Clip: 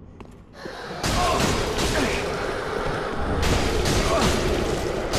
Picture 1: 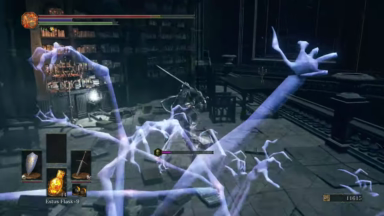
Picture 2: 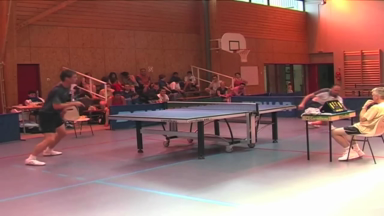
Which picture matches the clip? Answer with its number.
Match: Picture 1